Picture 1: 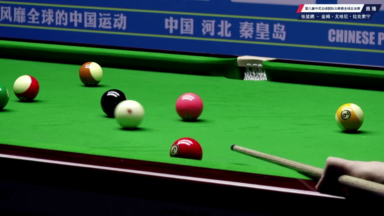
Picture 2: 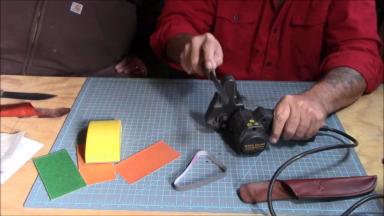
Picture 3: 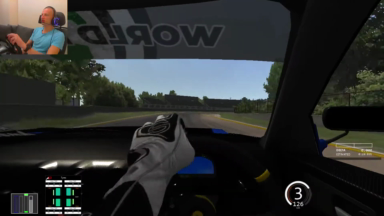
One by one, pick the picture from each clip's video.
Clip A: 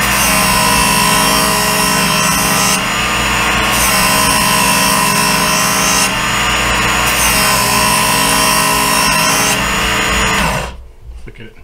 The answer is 2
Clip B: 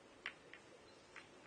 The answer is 1